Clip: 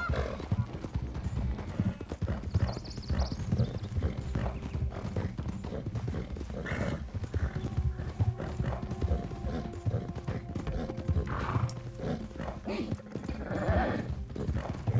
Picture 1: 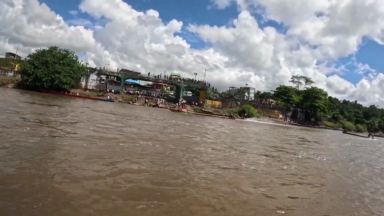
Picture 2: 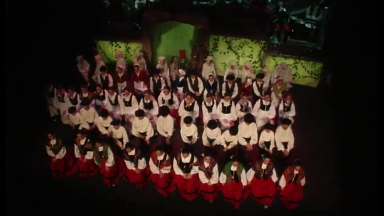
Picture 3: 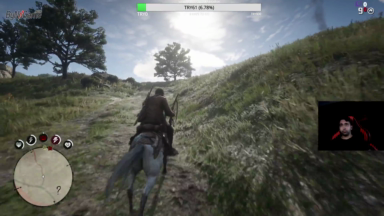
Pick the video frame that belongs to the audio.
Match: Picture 3